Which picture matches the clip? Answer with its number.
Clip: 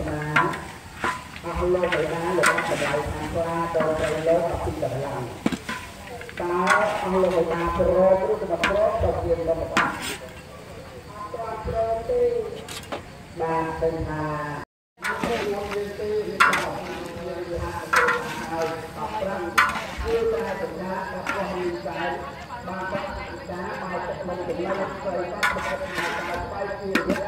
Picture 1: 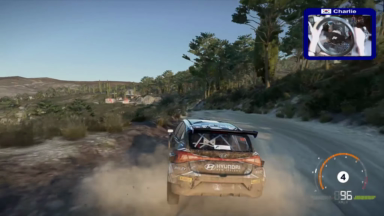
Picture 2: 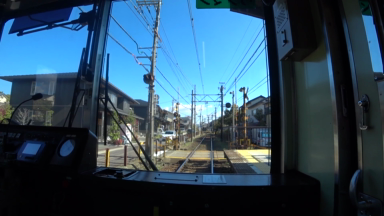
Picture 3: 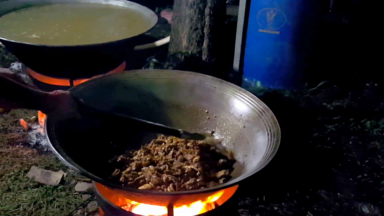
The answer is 3